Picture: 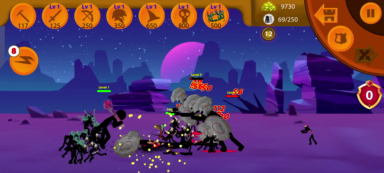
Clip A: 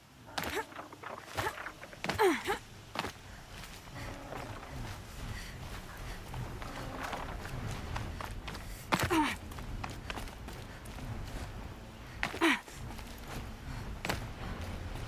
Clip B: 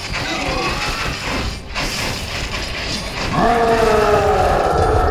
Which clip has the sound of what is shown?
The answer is B